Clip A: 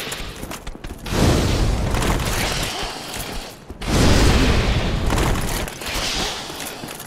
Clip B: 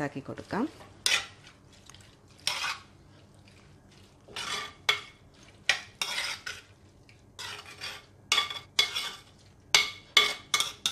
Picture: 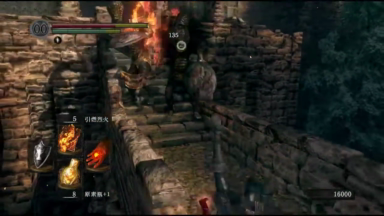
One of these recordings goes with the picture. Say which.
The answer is A